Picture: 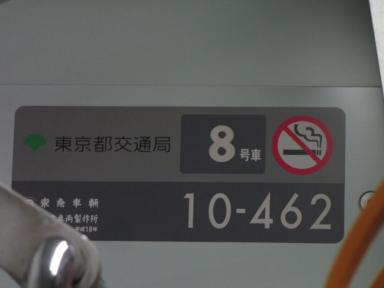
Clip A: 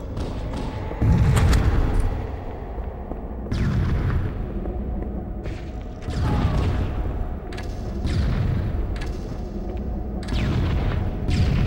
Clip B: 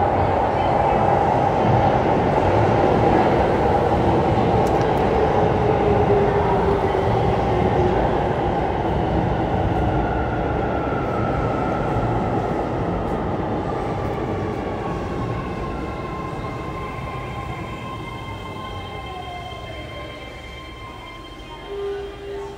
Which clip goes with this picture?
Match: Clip B